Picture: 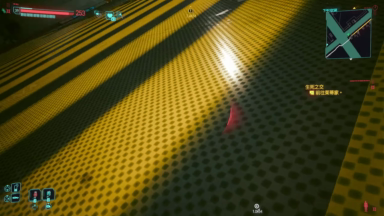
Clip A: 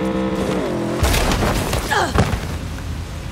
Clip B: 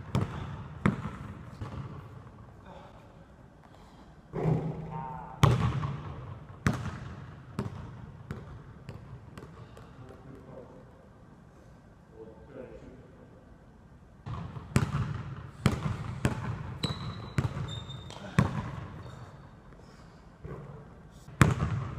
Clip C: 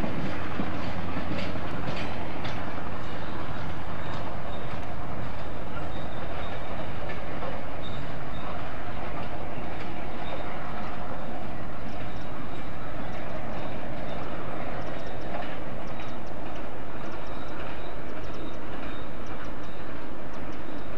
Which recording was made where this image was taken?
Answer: A